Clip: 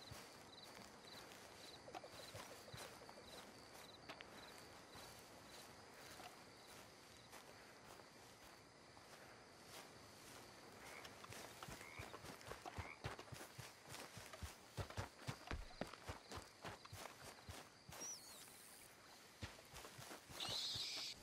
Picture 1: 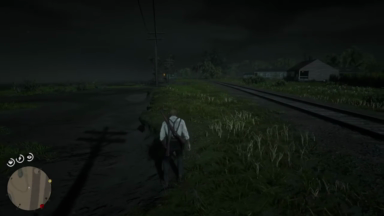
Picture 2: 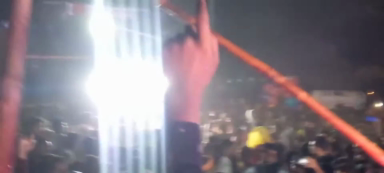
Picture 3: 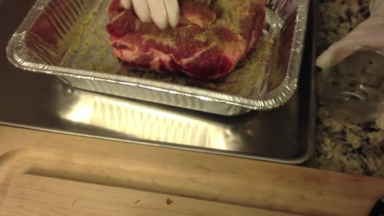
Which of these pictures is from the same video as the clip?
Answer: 1